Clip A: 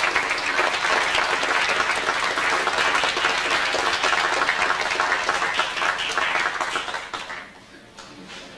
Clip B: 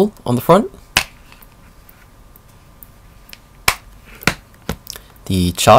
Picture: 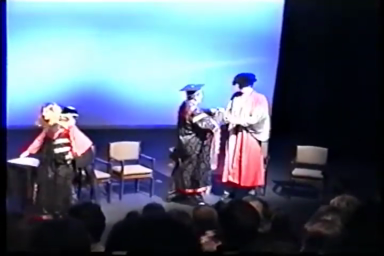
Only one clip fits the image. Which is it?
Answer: A